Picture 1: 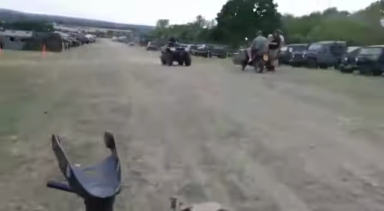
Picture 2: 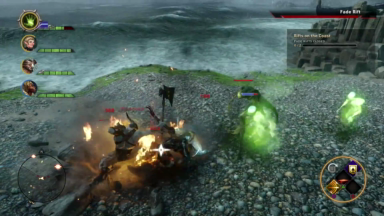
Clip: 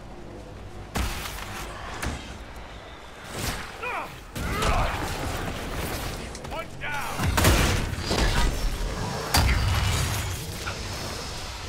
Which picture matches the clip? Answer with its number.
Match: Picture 2